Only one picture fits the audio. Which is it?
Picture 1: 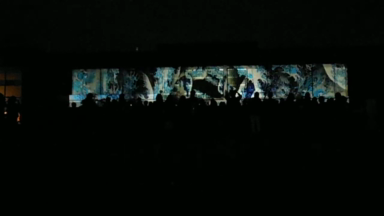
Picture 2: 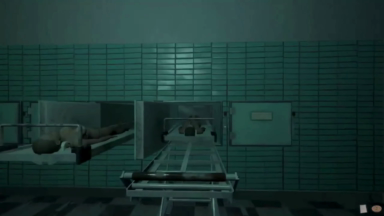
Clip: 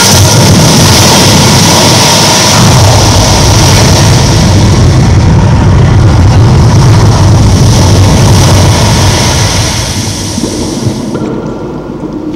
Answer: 1